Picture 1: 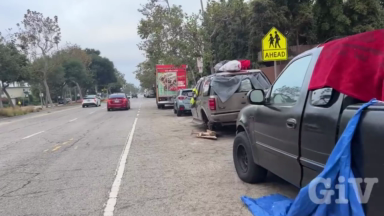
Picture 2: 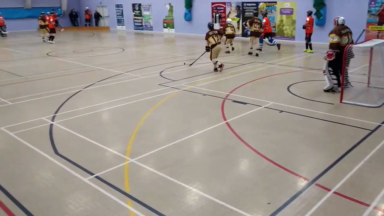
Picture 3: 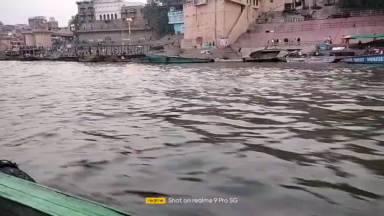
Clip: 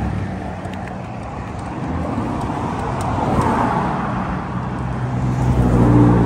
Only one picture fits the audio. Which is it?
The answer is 1